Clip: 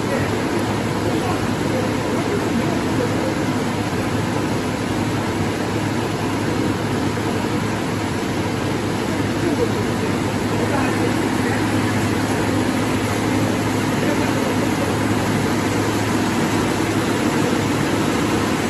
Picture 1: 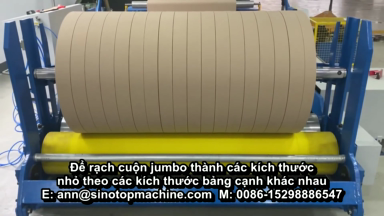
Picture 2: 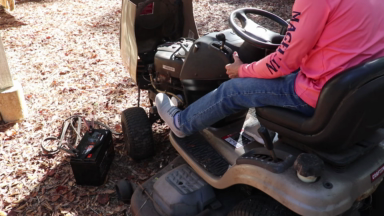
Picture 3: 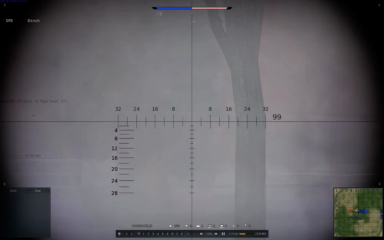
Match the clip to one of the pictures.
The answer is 1